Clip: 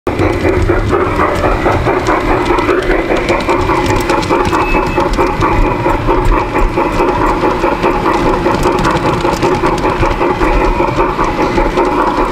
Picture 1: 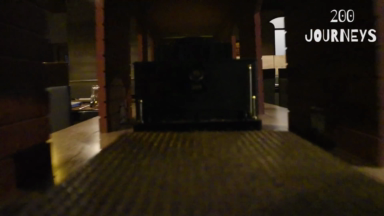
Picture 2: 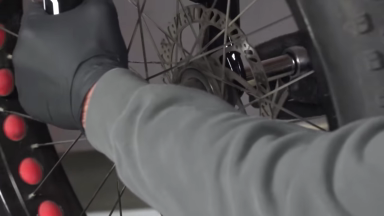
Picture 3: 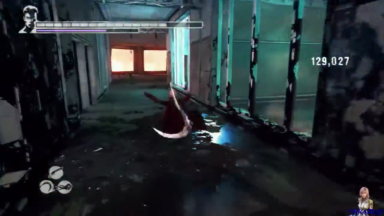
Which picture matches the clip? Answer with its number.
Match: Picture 1